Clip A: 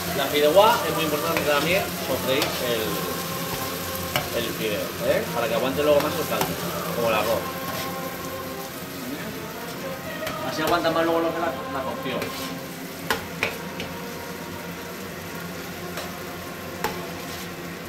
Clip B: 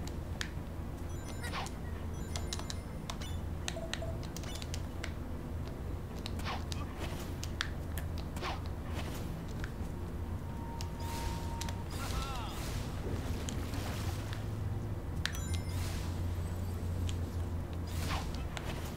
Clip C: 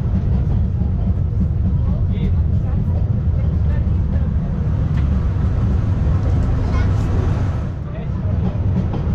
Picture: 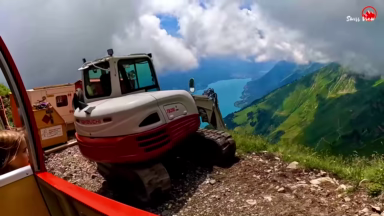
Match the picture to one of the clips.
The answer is C